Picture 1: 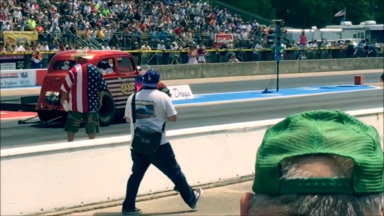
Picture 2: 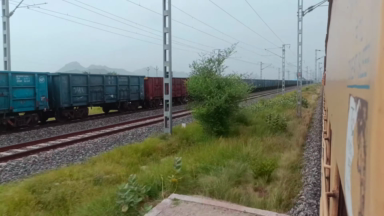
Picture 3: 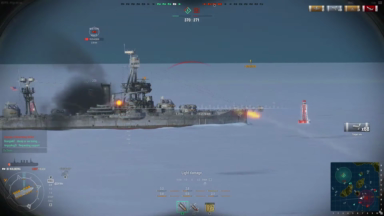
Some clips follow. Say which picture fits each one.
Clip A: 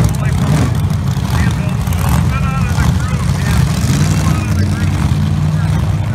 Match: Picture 1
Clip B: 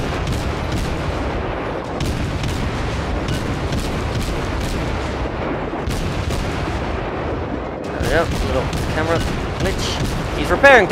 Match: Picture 3